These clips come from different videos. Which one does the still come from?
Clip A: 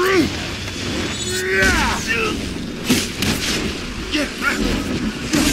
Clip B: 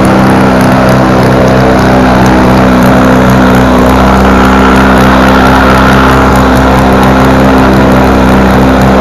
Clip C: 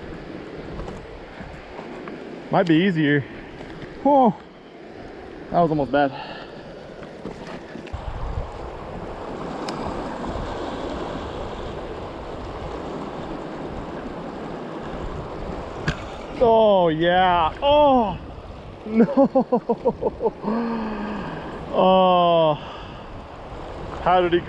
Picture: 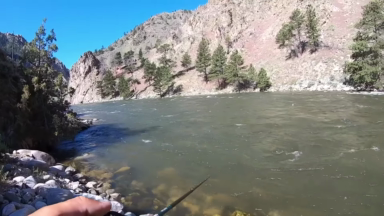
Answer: C